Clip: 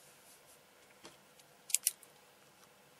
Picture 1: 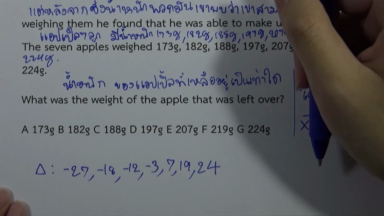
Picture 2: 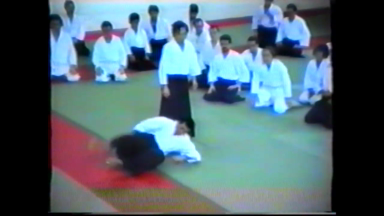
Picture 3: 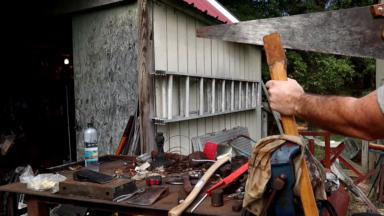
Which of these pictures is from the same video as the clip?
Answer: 1